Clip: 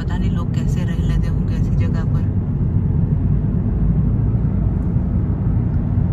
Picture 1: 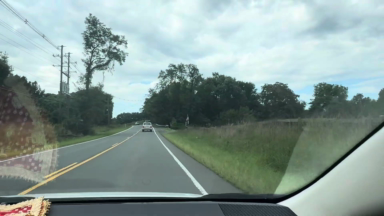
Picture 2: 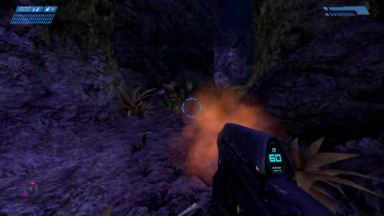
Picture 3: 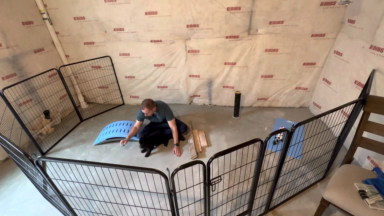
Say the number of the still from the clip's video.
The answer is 1